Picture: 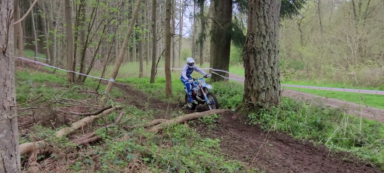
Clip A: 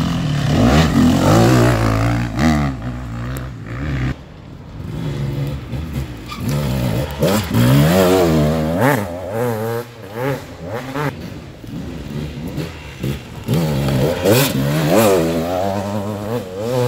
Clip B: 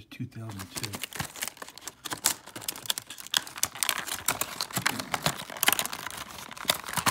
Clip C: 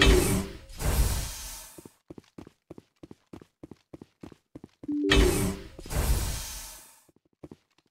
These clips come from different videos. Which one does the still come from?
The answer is A